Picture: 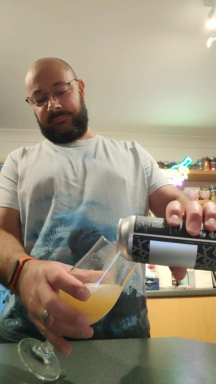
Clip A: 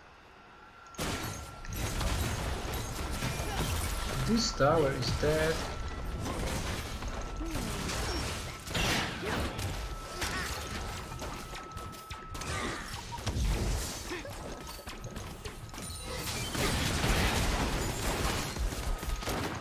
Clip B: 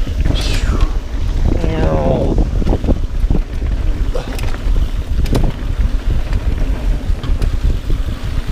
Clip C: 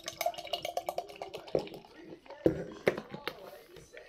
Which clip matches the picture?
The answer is C